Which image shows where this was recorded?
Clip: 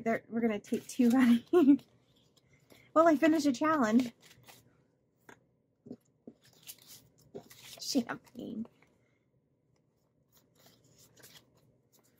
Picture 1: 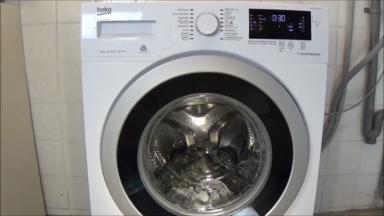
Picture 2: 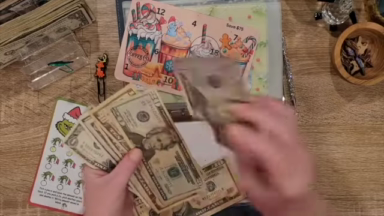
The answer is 2